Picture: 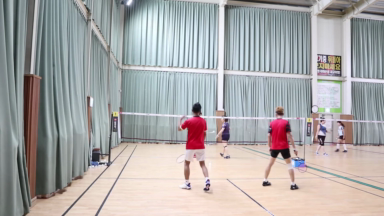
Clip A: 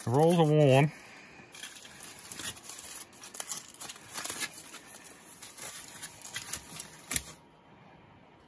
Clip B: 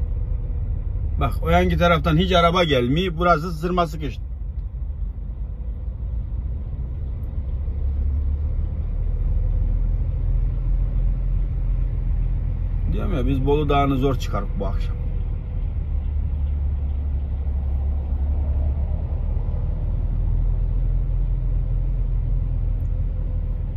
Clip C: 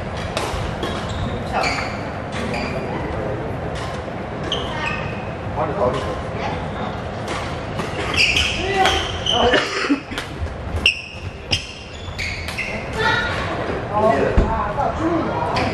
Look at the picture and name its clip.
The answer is C